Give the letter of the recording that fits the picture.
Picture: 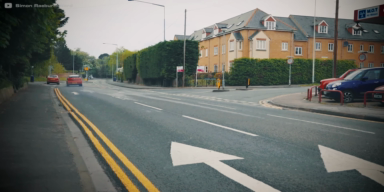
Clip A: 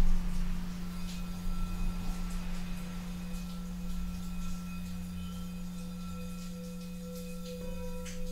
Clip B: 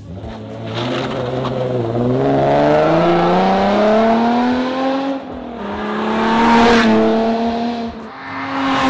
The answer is B